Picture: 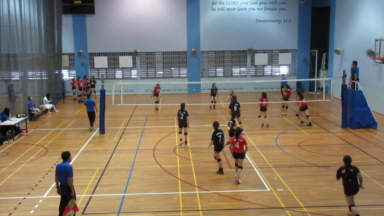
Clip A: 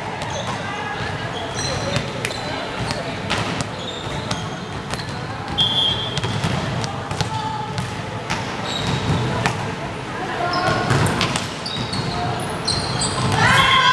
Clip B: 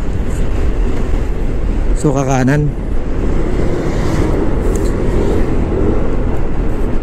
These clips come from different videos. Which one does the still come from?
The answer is A